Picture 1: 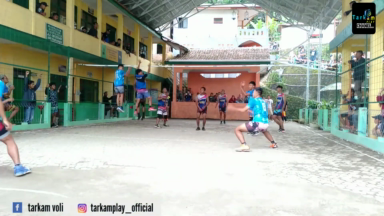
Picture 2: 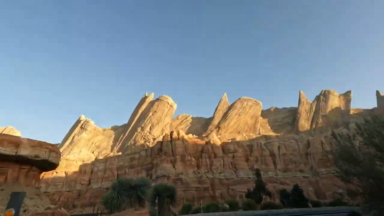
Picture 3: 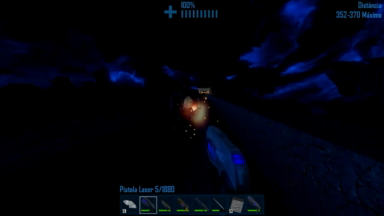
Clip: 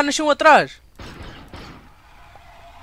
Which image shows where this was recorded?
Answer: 3